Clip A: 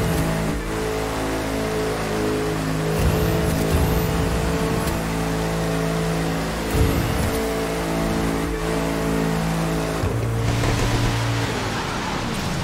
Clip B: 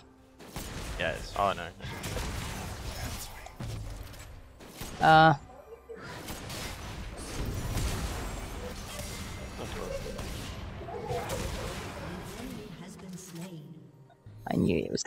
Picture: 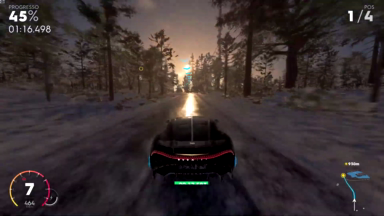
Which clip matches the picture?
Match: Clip A